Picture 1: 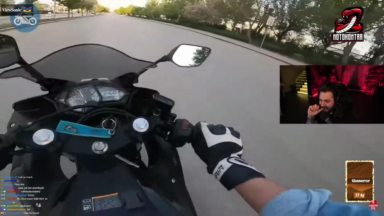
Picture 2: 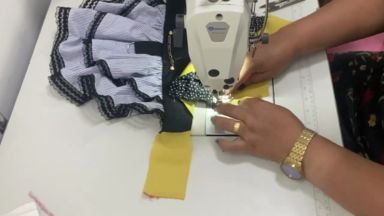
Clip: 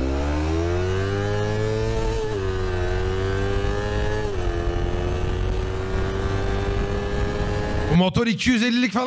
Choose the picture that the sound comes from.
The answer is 1